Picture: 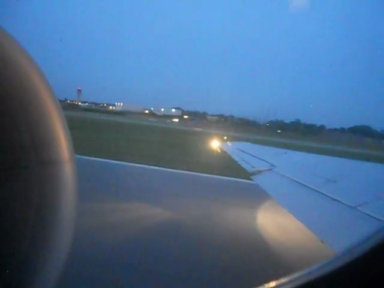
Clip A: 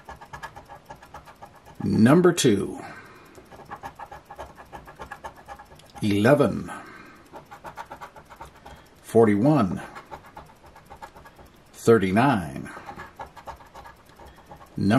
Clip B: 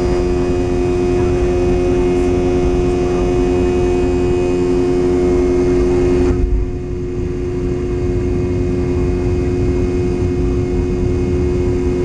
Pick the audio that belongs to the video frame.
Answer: B